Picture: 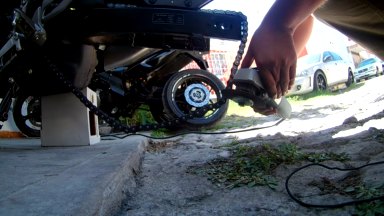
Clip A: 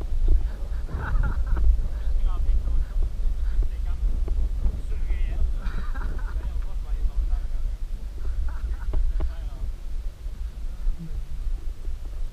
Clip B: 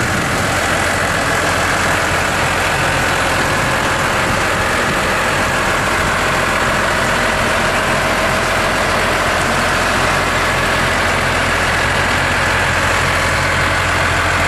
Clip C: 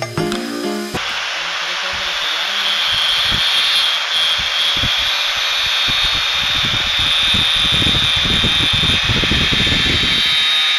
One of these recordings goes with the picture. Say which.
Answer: C